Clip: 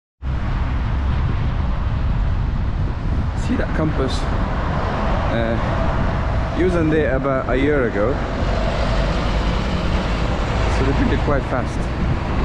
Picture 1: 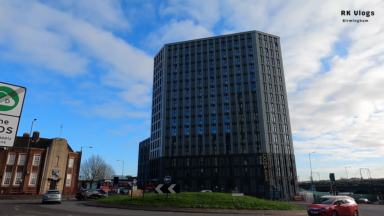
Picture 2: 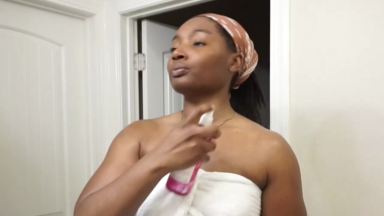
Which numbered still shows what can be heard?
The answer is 1